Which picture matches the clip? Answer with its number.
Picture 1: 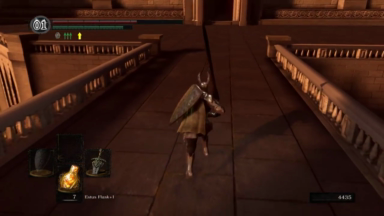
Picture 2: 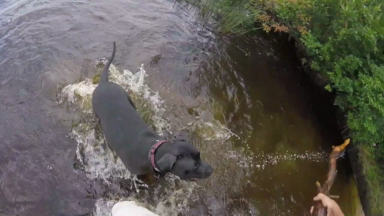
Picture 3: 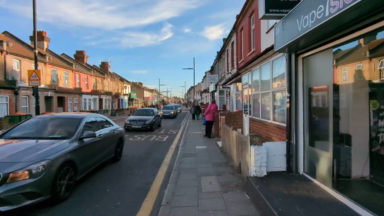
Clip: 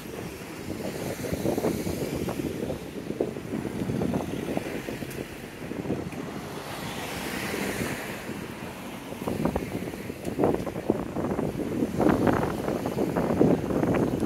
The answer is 3